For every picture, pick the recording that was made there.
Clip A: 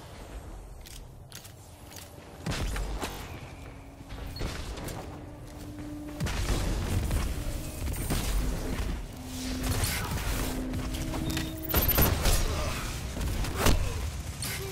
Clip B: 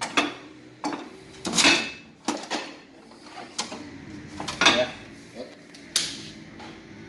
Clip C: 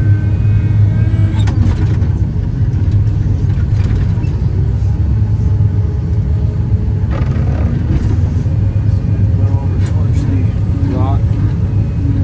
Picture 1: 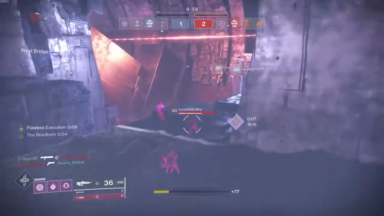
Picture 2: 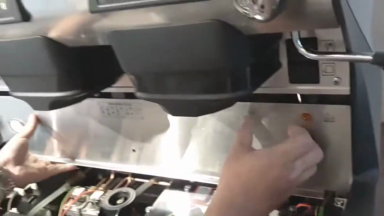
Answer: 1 A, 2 B